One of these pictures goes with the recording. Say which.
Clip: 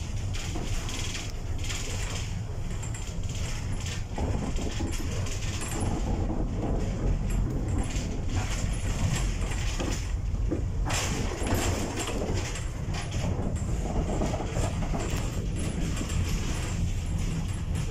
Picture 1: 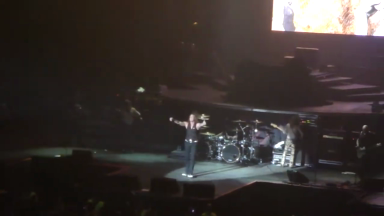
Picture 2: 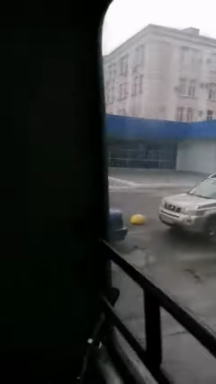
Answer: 2